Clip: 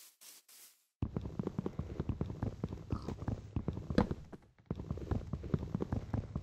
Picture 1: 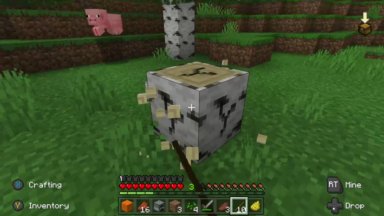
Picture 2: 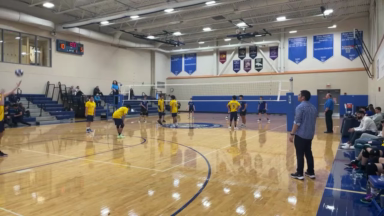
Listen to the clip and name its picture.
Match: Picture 1